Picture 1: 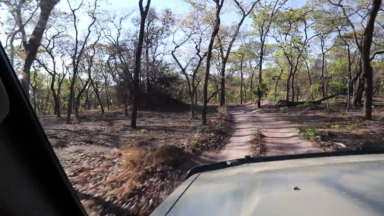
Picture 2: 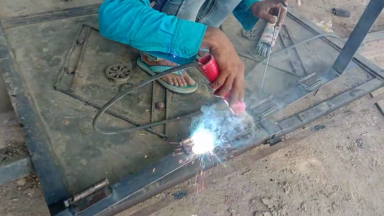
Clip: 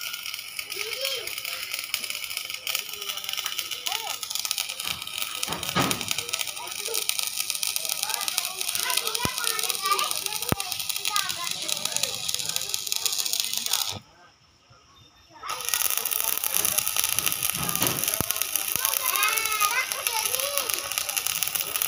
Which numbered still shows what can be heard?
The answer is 2